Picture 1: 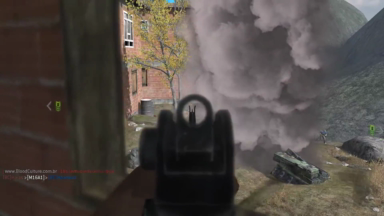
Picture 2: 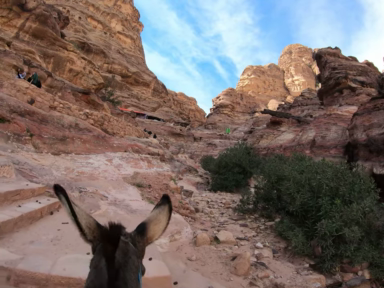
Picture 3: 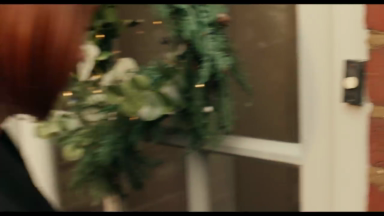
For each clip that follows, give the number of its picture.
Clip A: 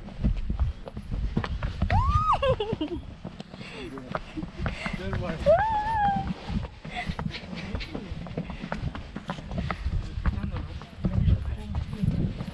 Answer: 2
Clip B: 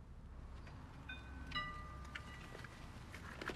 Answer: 3